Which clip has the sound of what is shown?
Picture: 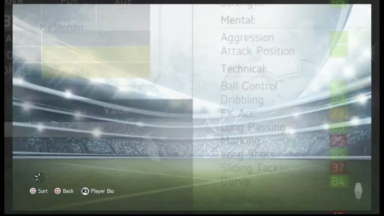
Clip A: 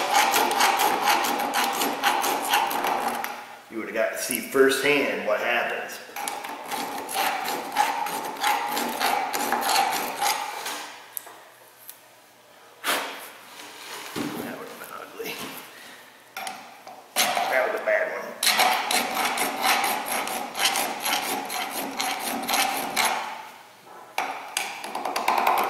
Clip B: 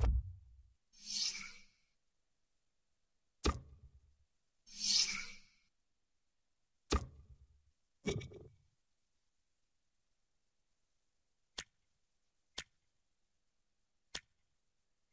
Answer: B